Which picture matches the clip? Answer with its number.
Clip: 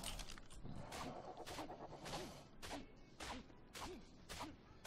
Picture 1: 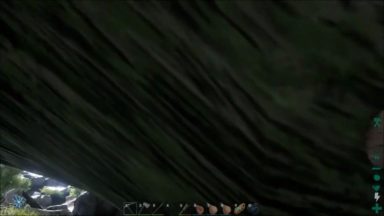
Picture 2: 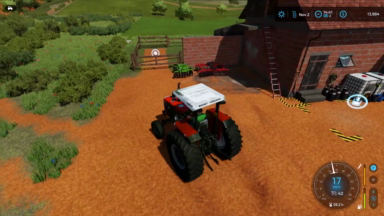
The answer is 1